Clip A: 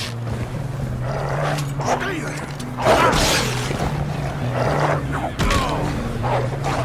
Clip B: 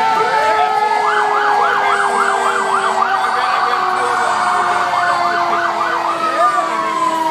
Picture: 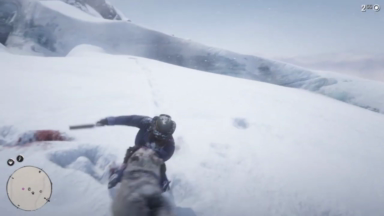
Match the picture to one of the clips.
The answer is A